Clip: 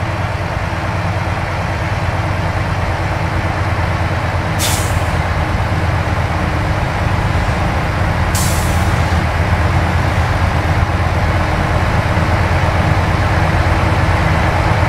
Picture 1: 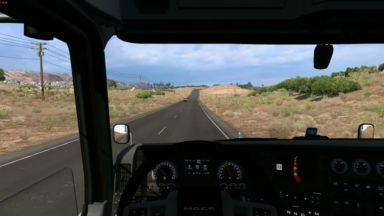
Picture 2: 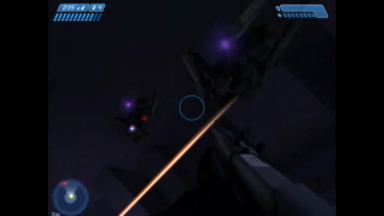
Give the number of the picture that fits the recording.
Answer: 1